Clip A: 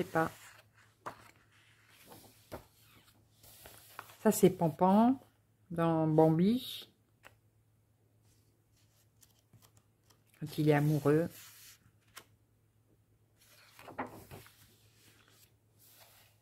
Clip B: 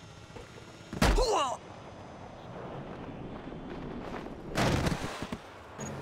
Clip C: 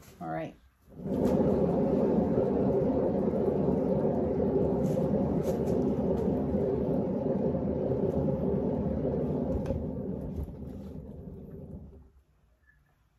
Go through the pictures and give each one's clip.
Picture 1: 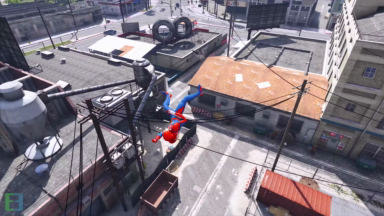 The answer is B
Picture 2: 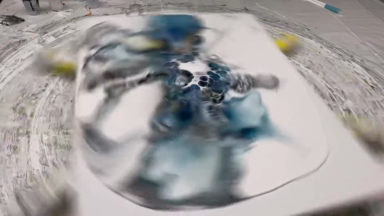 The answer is C